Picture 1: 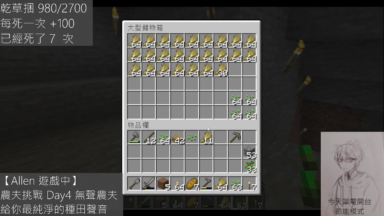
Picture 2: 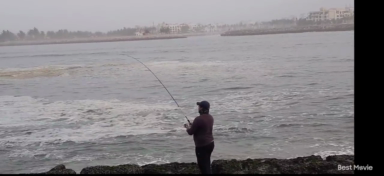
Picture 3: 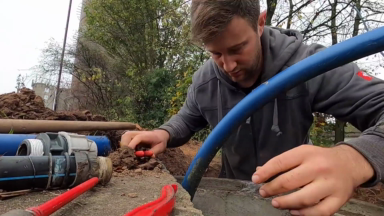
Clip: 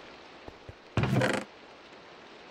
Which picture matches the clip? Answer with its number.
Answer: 1